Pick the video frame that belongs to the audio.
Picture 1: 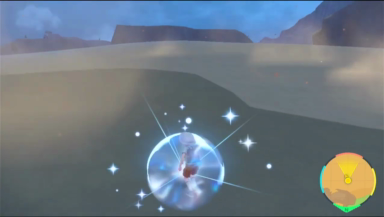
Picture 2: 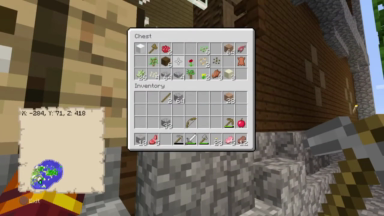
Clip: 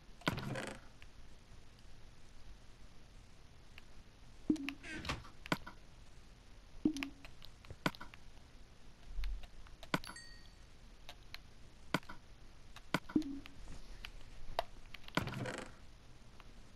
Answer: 2